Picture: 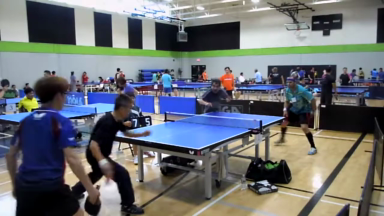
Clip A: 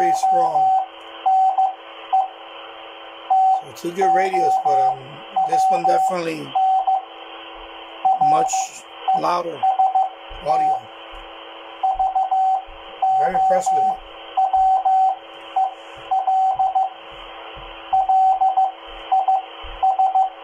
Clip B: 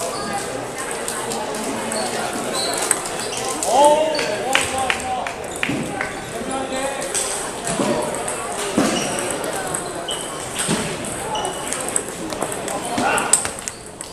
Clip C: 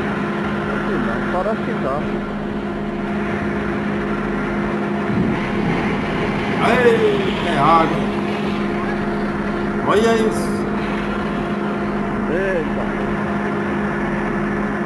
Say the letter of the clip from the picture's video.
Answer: B